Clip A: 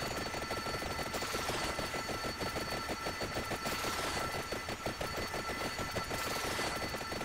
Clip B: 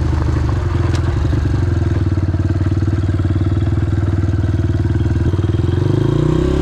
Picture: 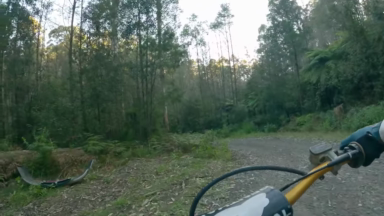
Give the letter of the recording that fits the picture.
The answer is B